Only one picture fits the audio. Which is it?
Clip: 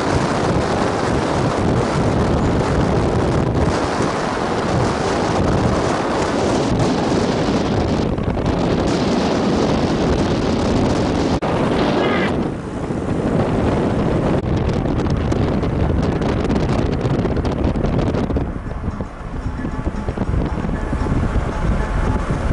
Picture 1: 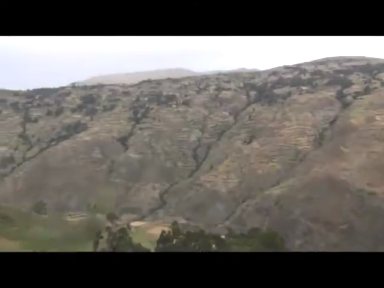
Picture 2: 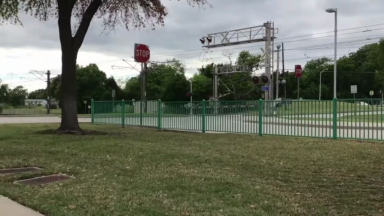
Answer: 1